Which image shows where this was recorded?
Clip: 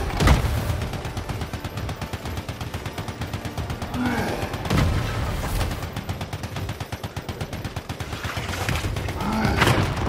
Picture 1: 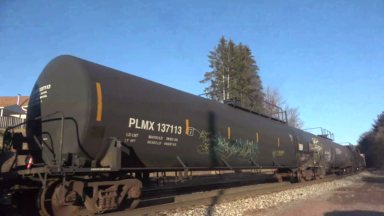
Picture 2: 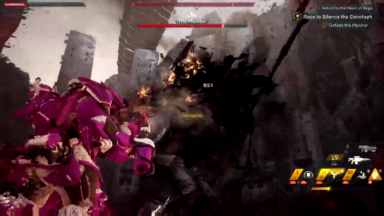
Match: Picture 2